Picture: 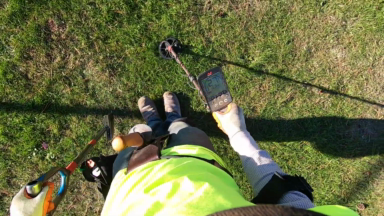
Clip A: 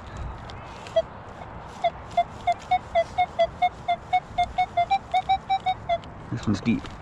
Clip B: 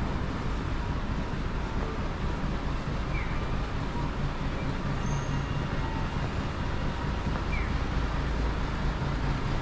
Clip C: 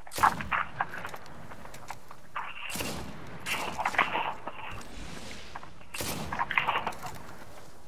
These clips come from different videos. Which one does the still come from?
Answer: A